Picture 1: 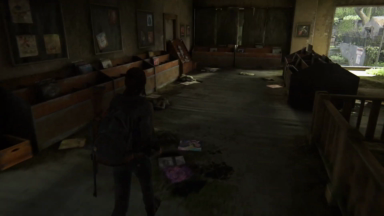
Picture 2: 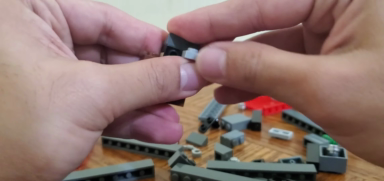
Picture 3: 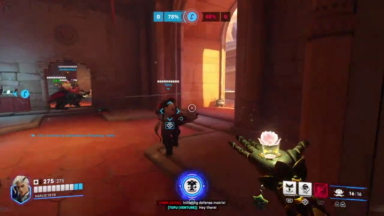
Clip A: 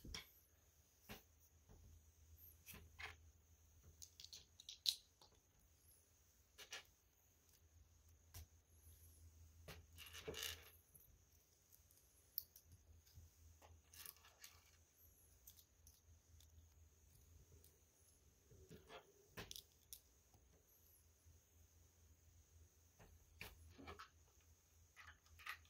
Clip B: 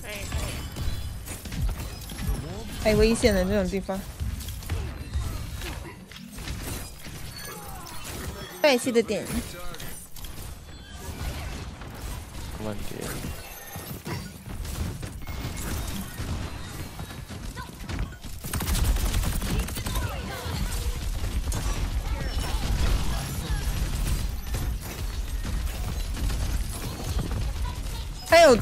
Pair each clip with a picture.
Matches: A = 2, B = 3